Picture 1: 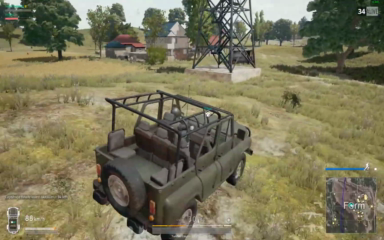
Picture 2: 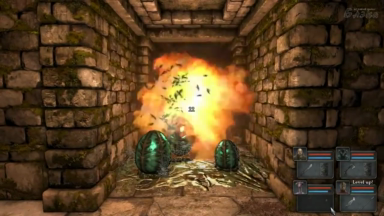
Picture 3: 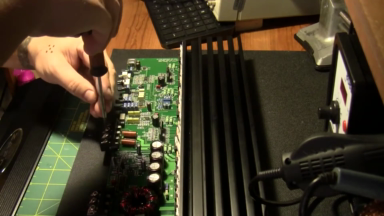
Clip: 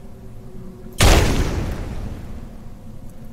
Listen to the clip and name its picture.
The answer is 2